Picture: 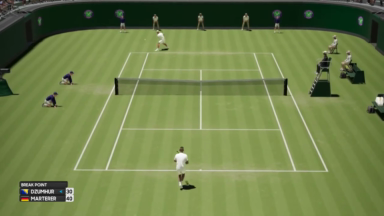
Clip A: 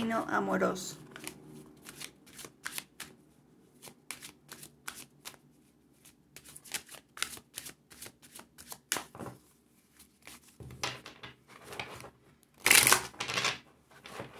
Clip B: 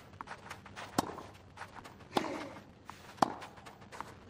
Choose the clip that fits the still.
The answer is B